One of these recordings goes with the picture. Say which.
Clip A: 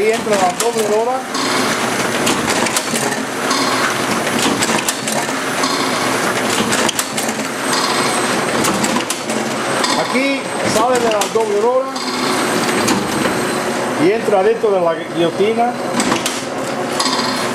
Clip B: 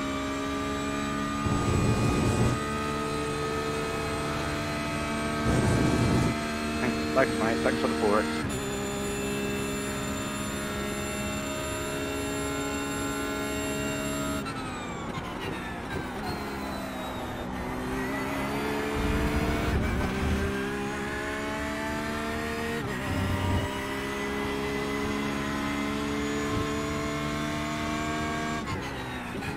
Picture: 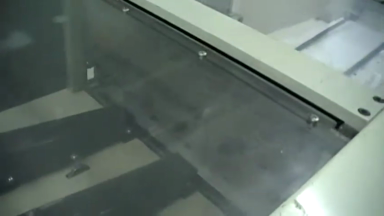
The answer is A